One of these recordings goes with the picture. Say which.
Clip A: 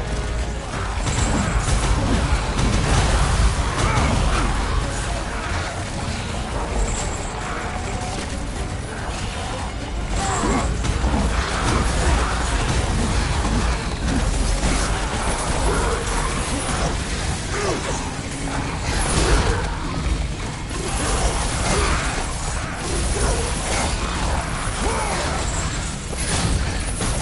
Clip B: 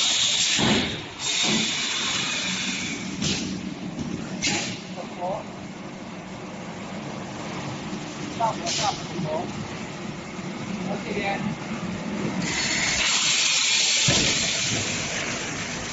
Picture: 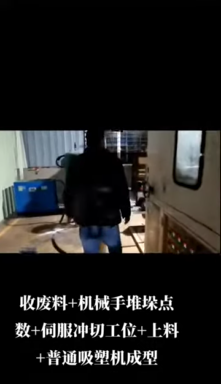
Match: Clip B